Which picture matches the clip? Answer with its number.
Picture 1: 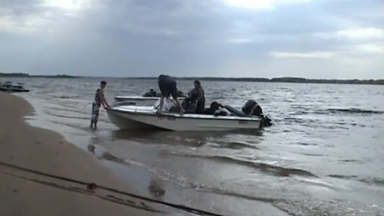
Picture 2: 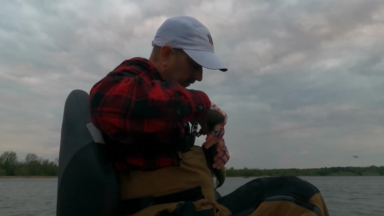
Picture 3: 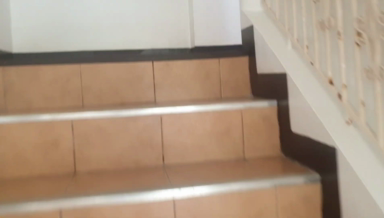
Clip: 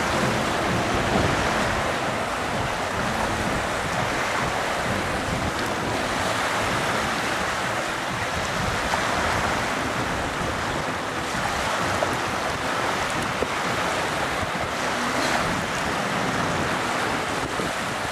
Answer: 1